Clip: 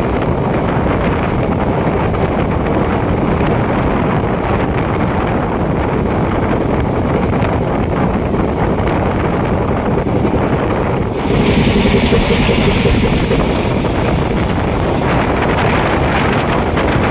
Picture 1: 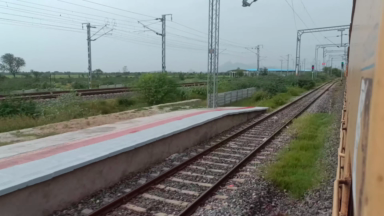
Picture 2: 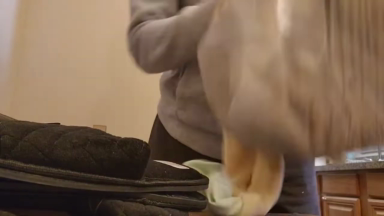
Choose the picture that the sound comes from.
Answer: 1